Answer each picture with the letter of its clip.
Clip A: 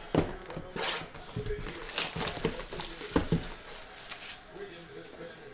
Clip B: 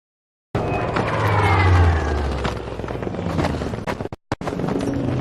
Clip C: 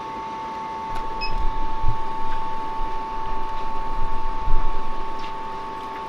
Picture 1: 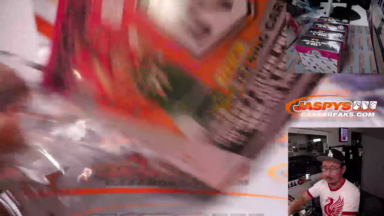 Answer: A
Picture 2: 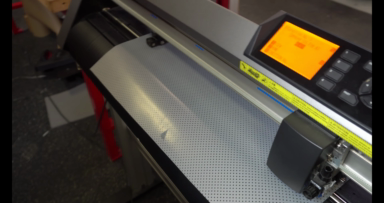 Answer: C